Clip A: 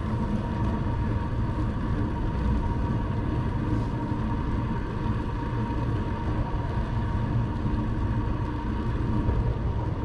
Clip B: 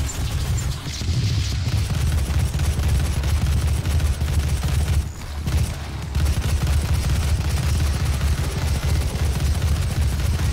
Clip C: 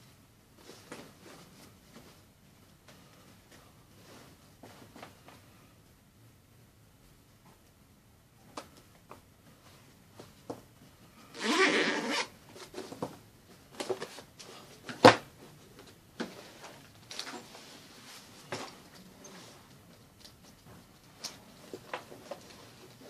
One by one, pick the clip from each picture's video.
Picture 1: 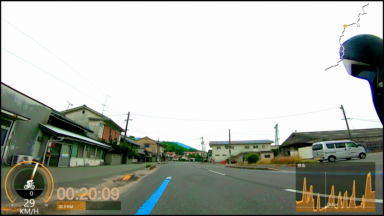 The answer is A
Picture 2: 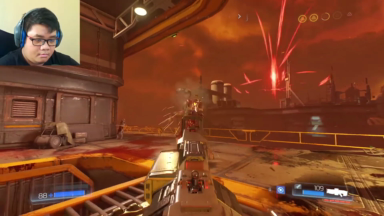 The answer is B